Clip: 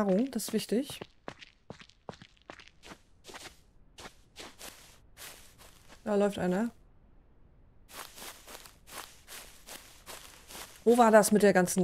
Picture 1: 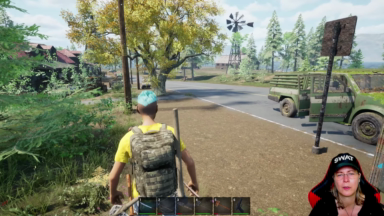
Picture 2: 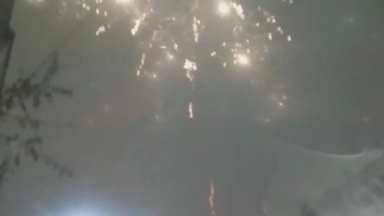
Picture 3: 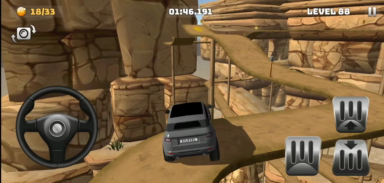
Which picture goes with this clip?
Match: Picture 1